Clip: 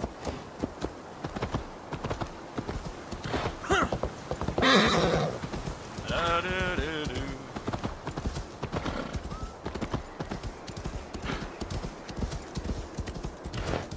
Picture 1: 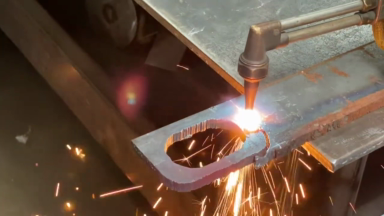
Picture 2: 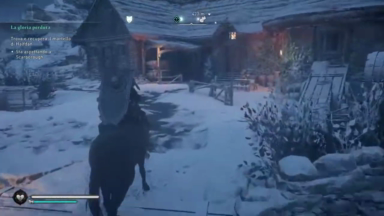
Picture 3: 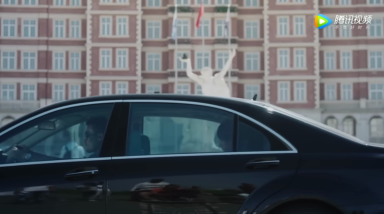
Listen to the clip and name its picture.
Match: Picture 2